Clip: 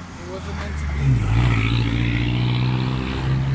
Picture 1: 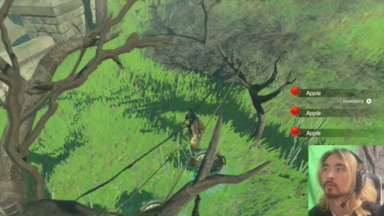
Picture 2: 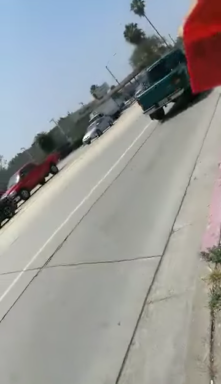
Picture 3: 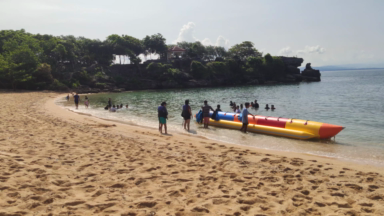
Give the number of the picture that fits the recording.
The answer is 2